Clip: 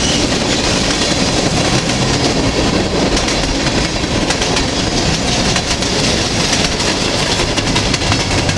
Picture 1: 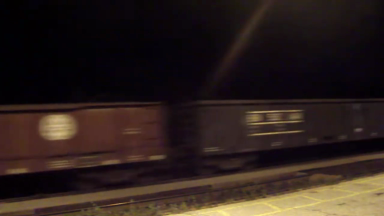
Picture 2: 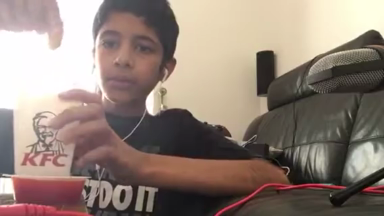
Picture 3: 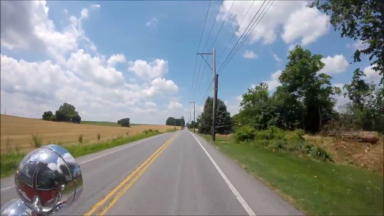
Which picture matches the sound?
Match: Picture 1